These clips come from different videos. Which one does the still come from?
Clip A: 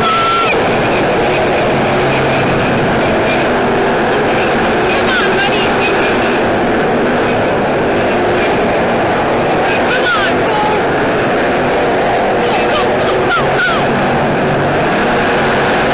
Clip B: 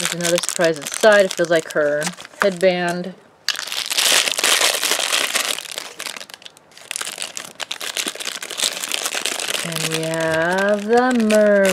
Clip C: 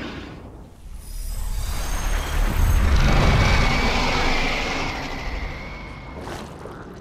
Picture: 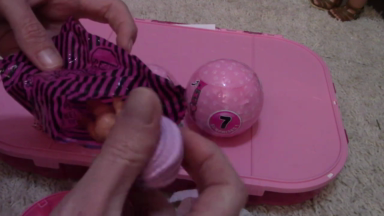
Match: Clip B